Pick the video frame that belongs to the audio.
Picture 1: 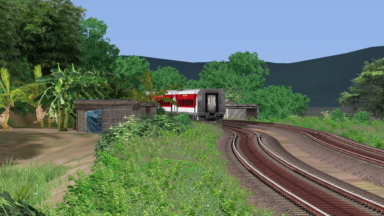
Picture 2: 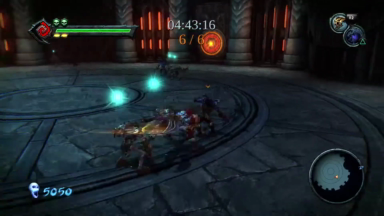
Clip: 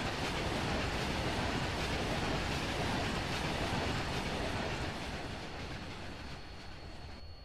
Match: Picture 1